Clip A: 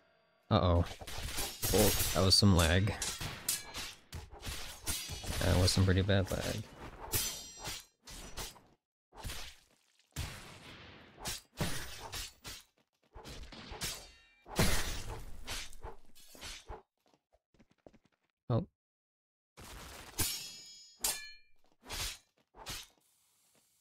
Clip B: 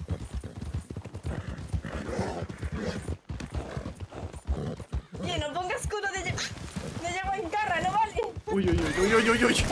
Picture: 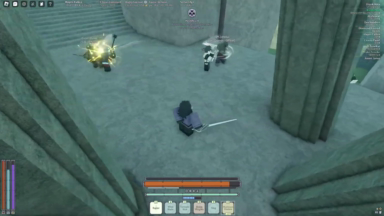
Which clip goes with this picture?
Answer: A